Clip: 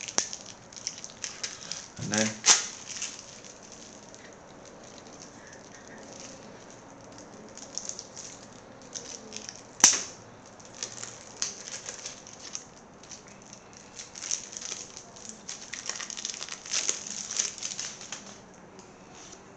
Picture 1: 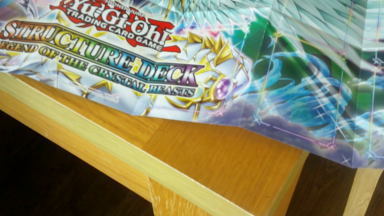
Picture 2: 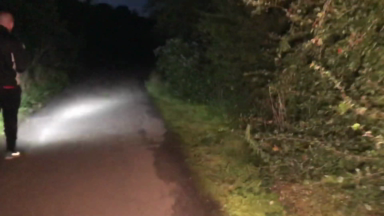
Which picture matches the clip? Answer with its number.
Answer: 1